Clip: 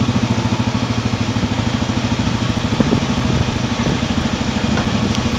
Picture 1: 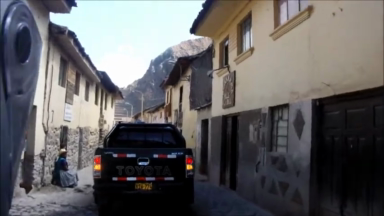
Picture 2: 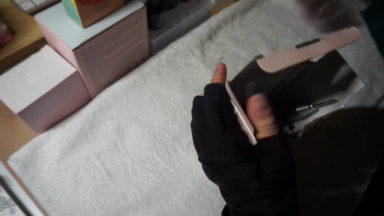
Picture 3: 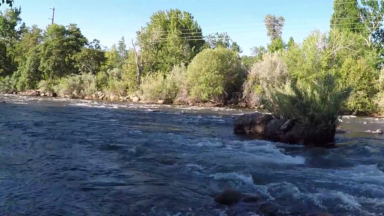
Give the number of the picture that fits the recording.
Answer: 1